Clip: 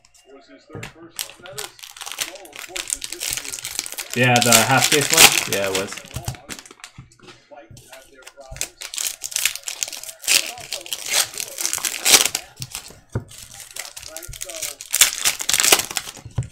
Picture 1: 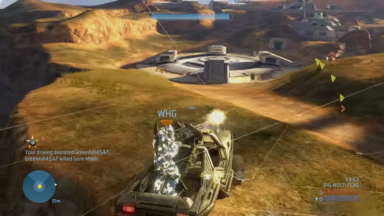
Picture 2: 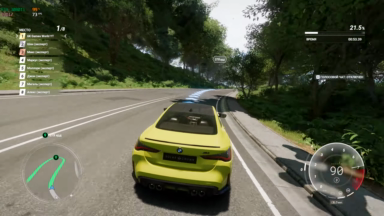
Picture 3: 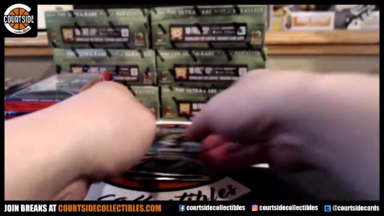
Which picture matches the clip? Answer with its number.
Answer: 3